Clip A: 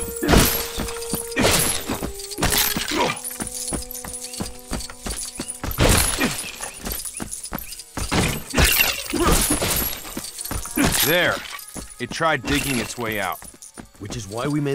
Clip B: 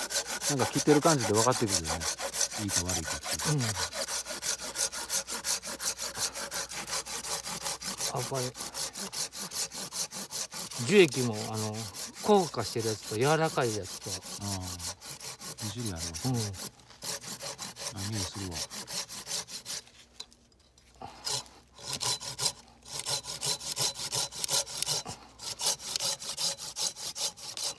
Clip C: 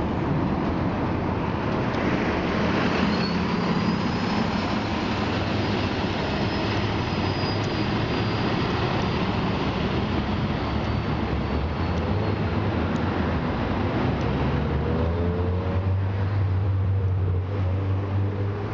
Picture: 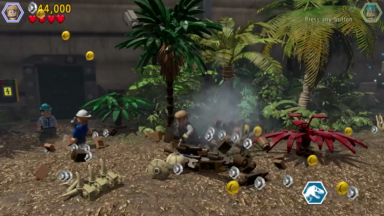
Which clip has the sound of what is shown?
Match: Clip A